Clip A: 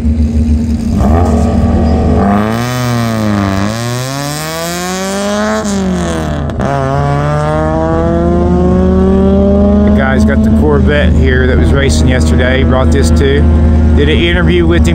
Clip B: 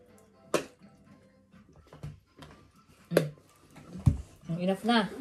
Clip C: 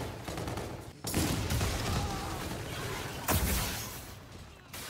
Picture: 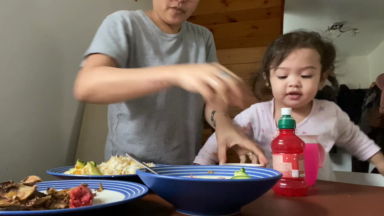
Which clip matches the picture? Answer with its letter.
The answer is B